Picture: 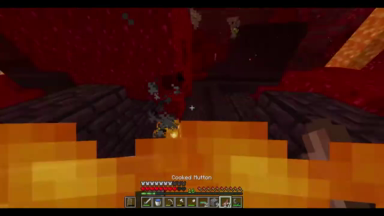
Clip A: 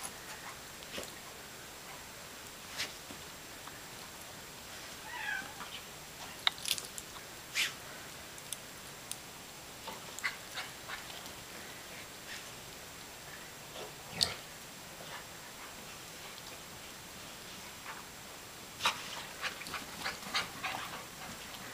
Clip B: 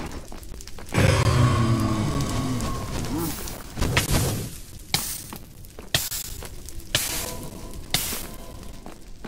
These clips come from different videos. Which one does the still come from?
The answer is B